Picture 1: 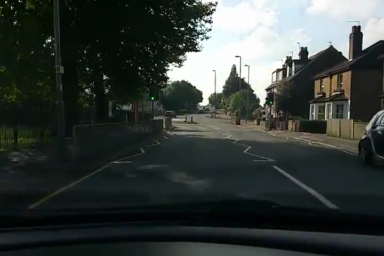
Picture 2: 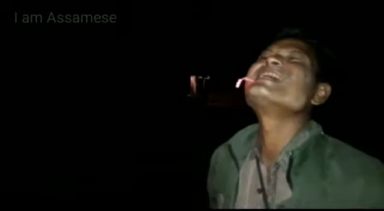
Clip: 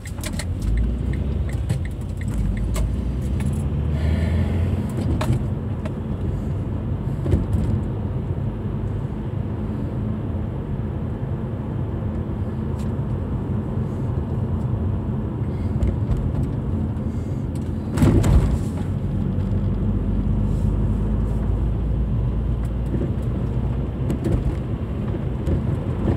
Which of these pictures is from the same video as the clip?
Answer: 1